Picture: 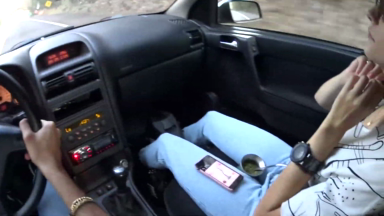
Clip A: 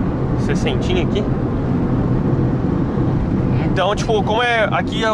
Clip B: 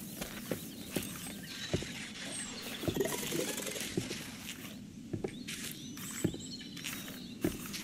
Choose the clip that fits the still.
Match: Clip A